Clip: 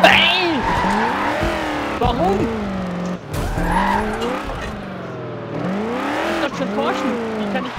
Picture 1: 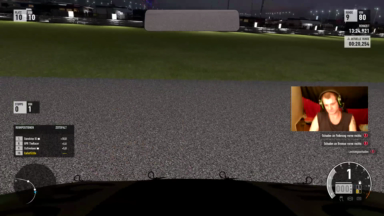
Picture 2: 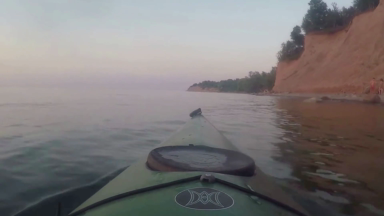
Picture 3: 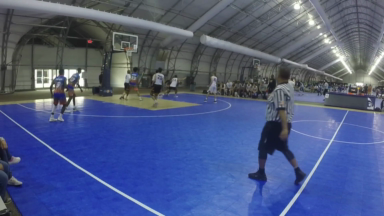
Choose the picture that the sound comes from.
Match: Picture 1